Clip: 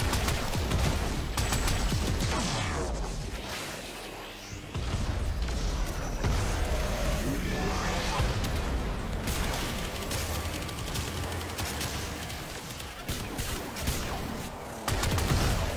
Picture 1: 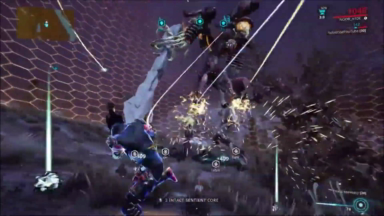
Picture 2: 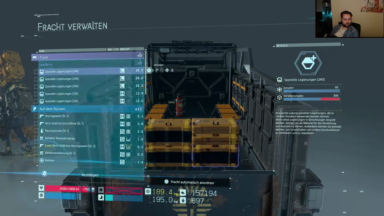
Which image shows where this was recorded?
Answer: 1